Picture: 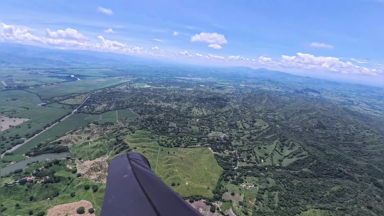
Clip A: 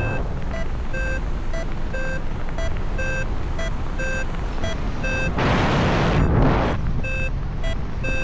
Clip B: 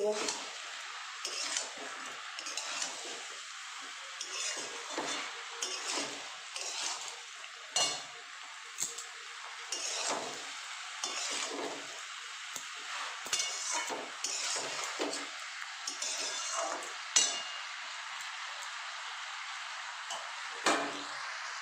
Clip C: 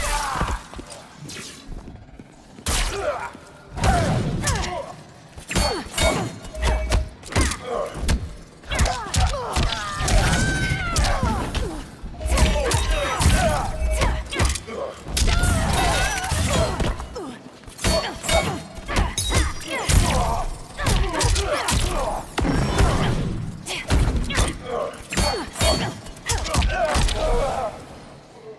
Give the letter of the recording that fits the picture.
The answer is A